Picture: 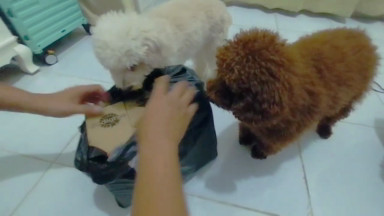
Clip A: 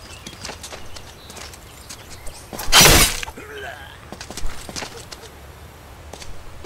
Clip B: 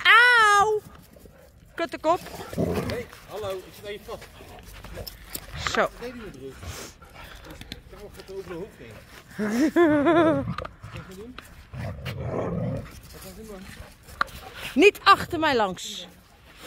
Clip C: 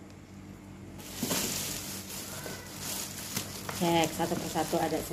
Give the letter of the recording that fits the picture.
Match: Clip C